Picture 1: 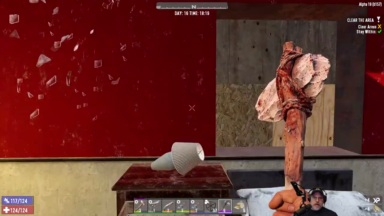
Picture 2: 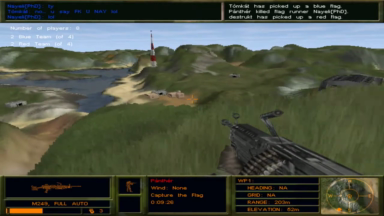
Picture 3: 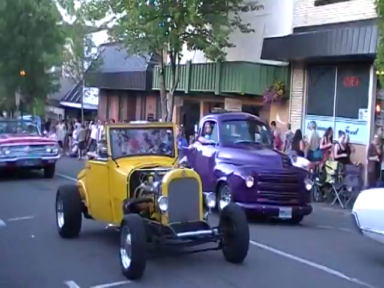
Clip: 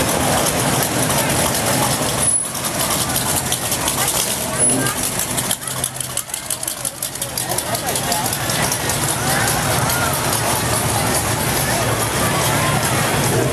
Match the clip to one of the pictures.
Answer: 3